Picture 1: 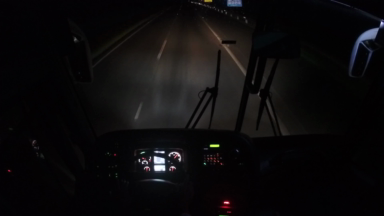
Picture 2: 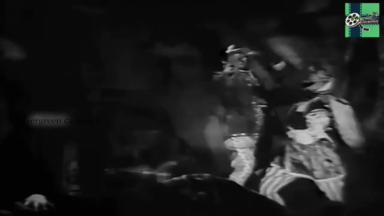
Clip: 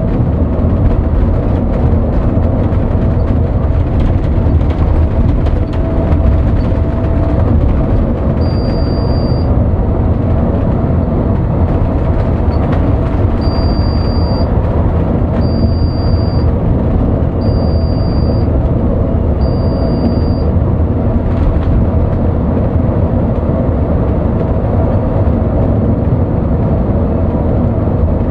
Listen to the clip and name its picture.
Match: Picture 1